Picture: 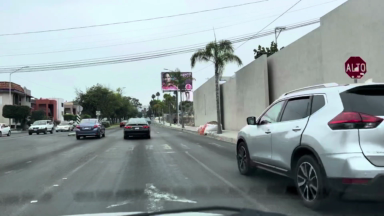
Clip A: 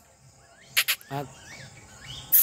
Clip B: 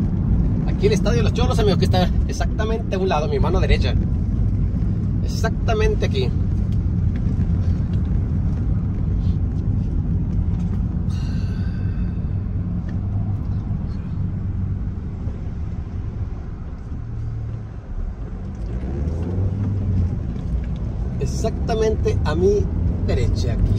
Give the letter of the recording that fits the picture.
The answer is B